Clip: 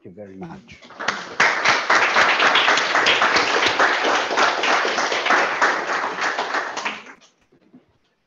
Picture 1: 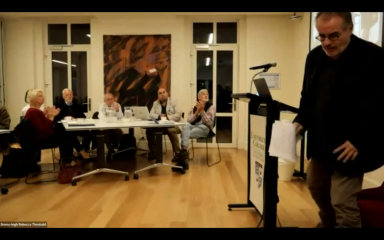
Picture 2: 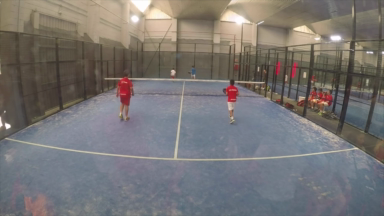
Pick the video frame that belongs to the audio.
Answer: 1